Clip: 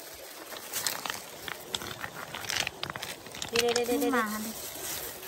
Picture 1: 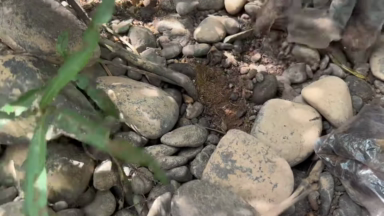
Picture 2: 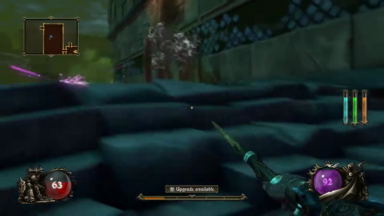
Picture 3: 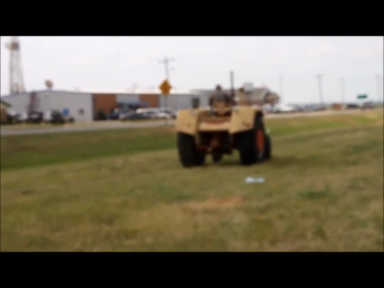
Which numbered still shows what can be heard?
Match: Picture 1